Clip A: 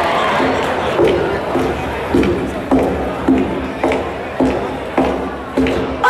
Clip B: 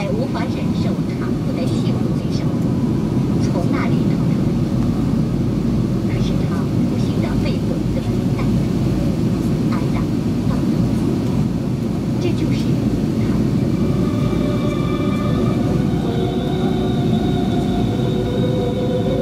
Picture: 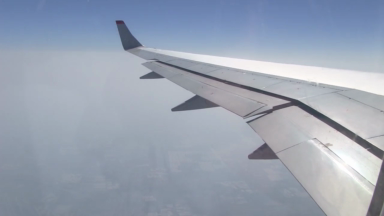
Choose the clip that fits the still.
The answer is B